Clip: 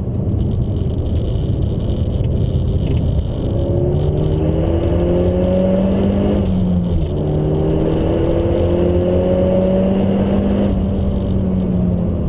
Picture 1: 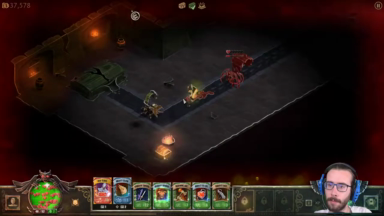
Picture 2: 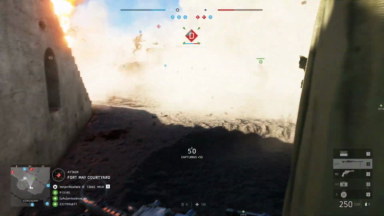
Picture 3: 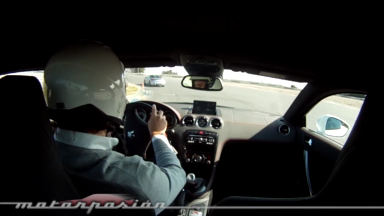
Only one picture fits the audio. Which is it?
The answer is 3